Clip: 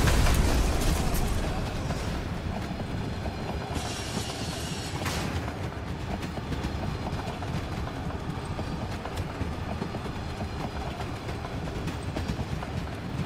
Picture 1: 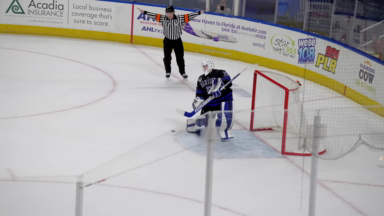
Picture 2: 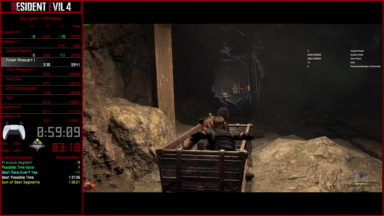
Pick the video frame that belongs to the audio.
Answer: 2